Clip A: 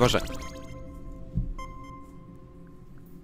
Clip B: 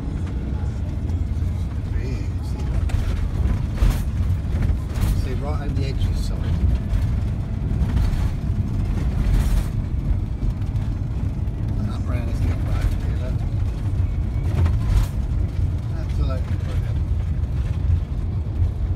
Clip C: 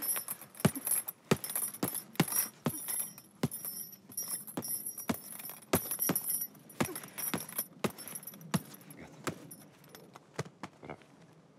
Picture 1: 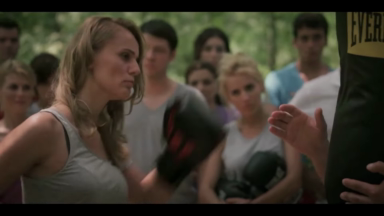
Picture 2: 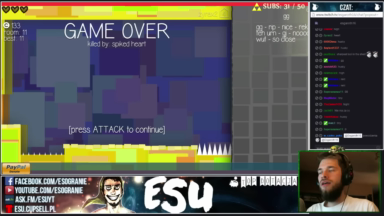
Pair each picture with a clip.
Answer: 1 C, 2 A